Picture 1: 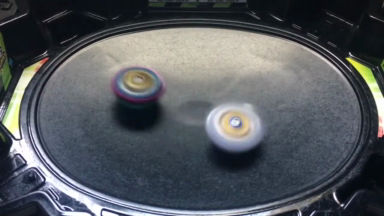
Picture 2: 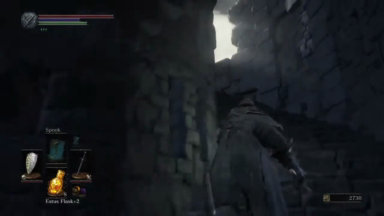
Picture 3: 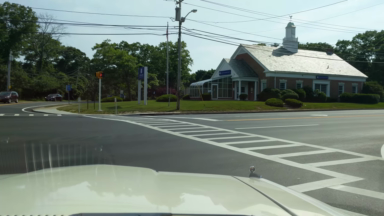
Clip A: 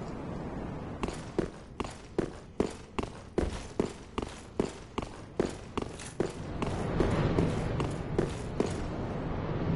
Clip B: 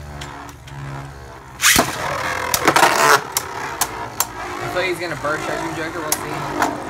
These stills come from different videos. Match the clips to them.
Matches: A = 2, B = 1